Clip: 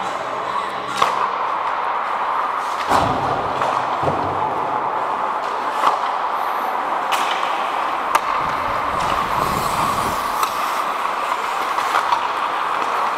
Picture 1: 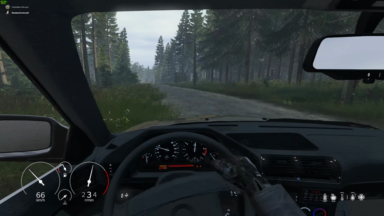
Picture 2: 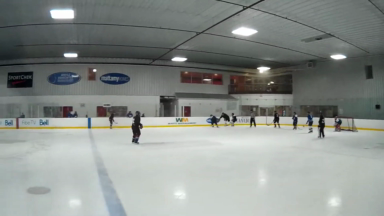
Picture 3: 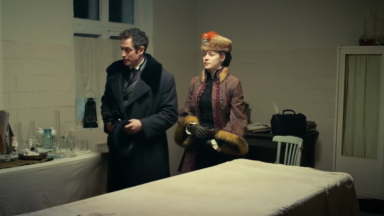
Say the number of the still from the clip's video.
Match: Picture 2